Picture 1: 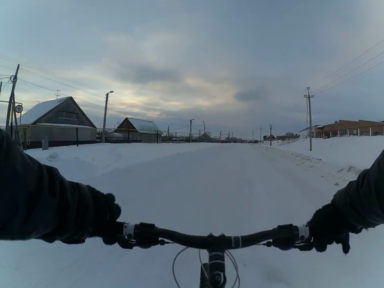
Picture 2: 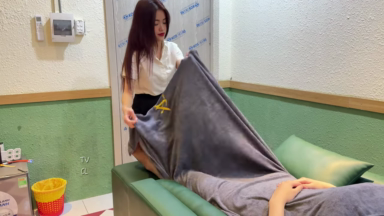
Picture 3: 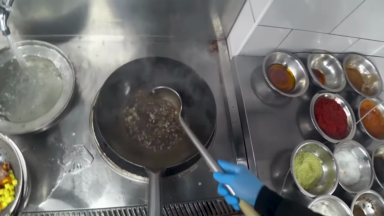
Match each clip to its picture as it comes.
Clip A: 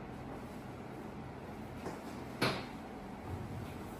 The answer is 2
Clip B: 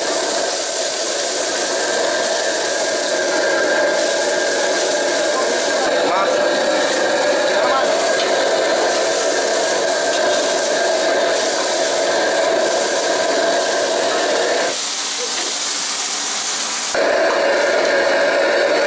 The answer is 3